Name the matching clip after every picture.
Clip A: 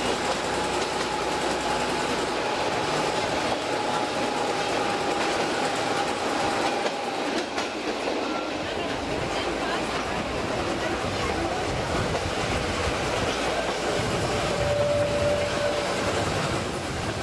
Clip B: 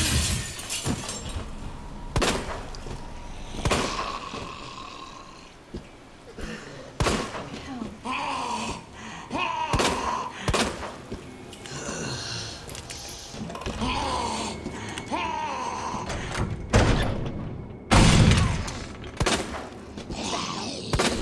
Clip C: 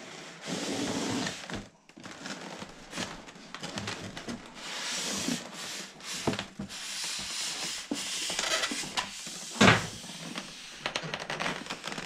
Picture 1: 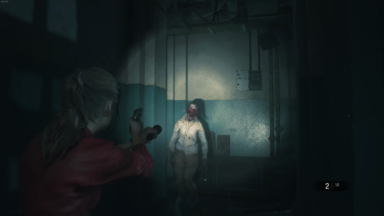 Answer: B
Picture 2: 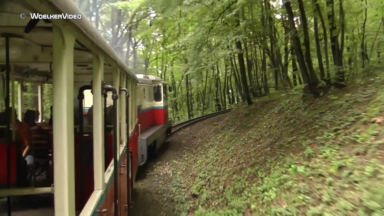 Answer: A